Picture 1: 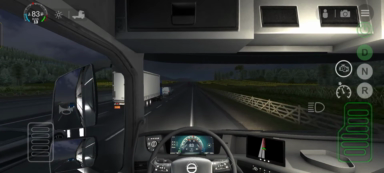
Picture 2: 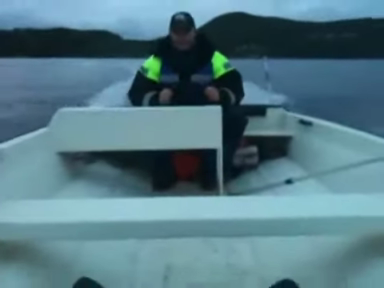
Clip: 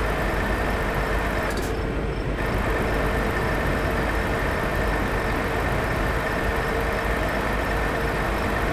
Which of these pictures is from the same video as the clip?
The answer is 1